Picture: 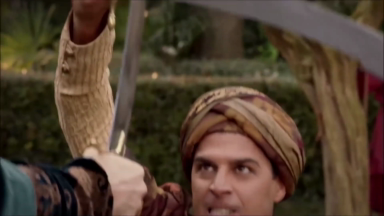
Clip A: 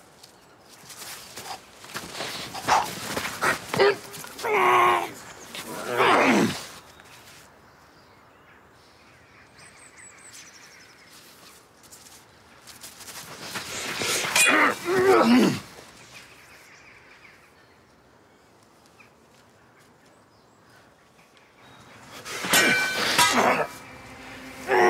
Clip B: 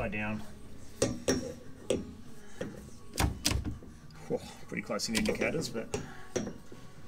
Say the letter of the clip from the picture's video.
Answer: A